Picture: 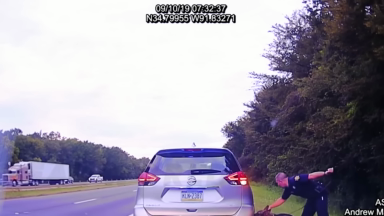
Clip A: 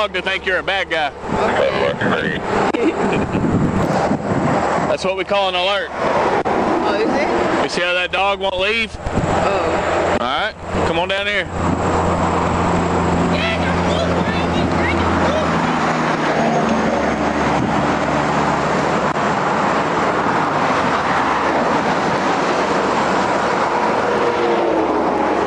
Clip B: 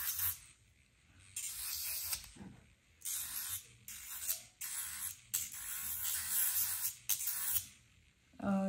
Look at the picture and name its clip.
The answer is A